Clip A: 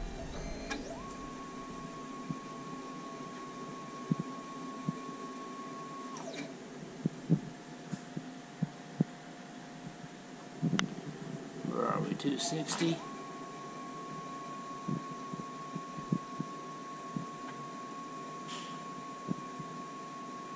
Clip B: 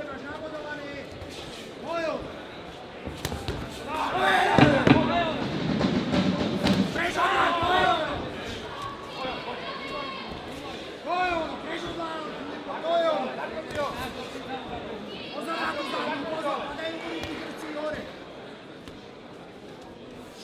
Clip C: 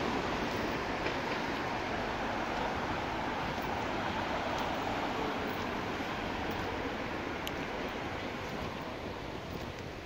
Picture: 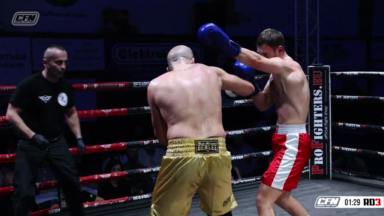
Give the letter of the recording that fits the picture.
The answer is B